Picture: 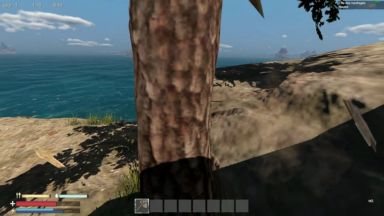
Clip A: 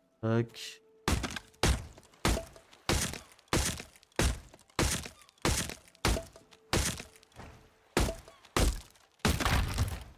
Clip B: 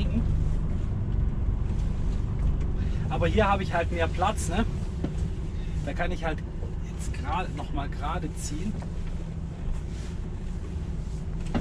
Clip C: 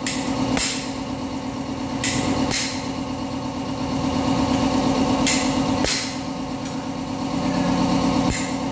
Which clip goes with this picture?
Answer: A